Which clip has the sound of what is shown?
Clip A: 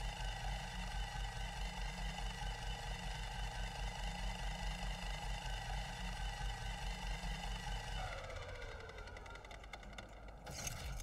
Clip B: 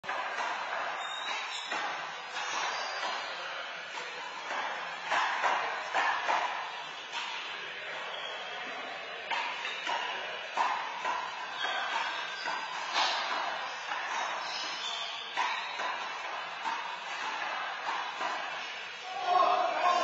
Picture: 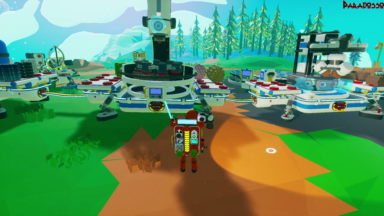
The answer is A